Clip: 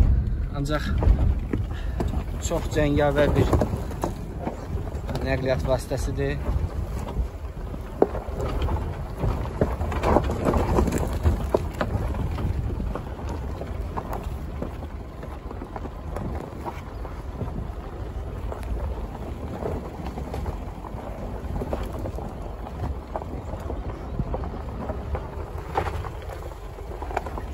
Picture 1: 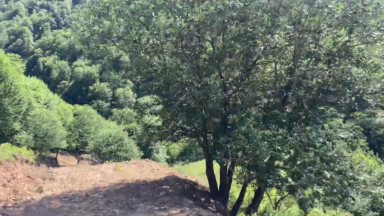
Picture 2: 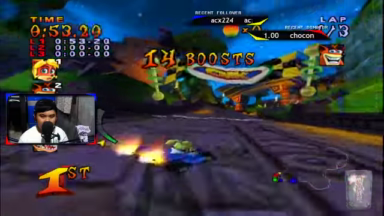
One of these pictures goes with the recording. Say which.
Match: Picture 1